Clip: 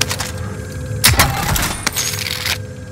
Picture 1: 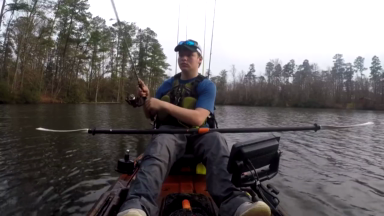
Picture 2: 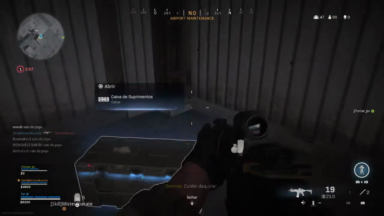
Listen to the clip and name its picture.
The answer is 2